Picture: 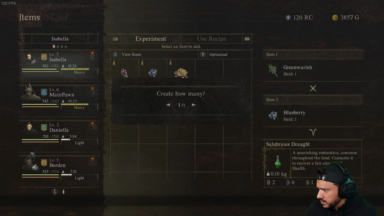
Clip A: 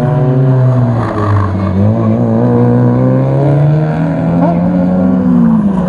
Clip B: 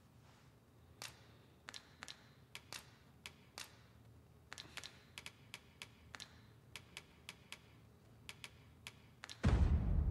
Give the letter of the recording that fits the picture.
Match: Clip B